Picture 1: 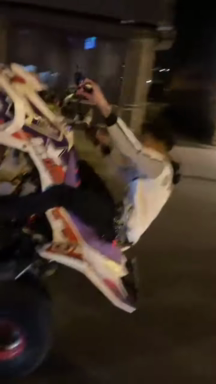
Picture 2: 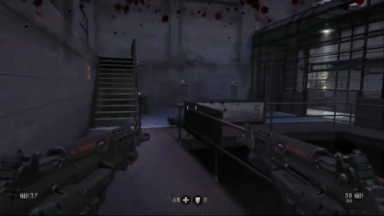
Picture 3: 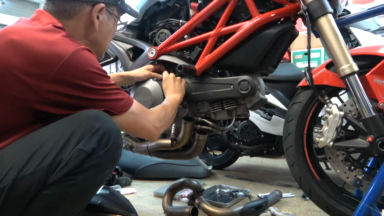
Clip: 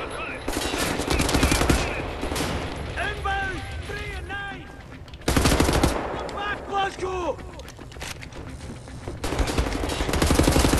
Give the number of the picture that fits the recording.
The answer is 2